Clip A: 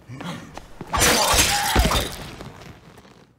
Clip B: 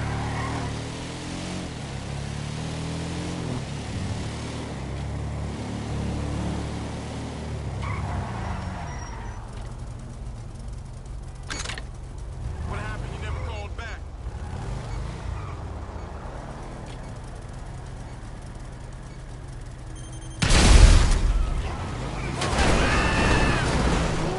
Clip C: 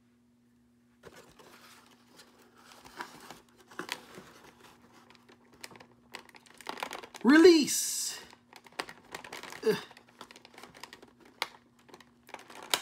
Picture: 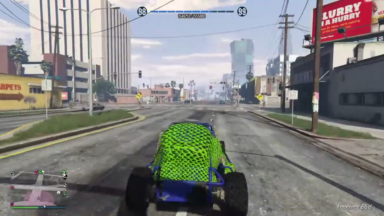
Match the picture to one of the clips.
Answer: B